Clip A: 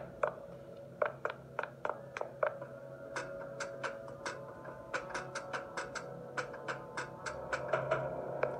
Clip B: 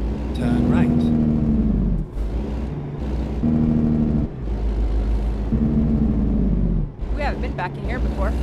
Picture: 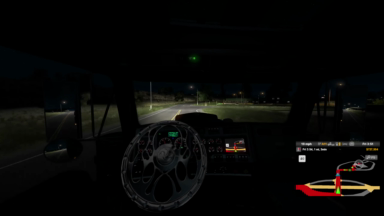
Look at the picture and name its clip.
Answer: B